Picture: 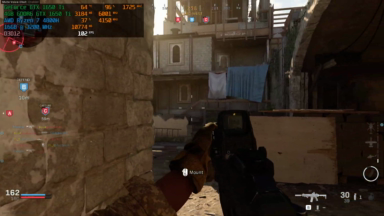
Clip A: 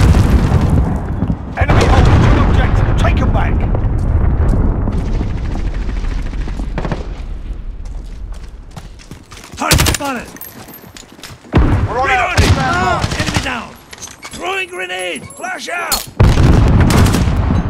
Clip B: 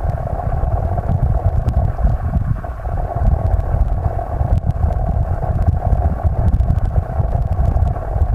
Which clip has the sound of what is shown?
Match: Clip A